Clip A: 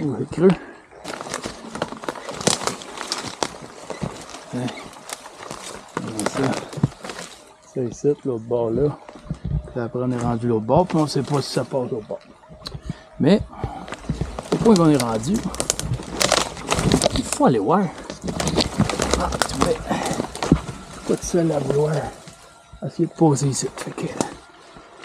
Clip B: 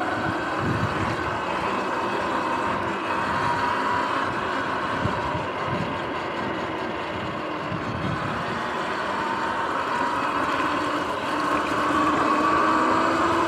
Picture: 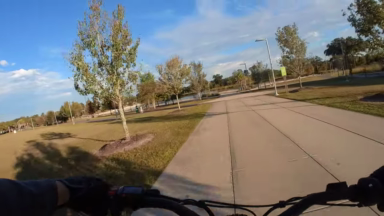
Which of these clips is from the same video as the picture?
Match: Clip B